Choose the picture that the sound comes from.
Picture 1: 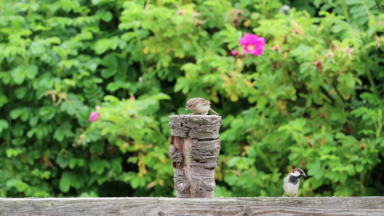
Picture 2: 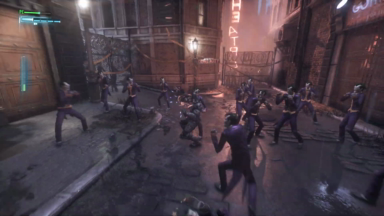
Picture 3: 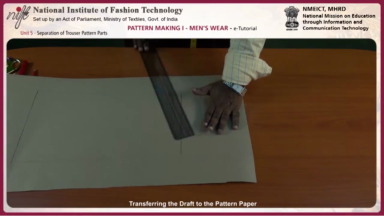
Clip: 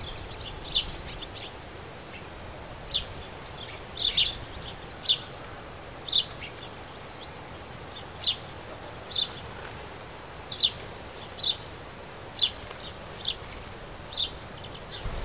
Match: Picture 1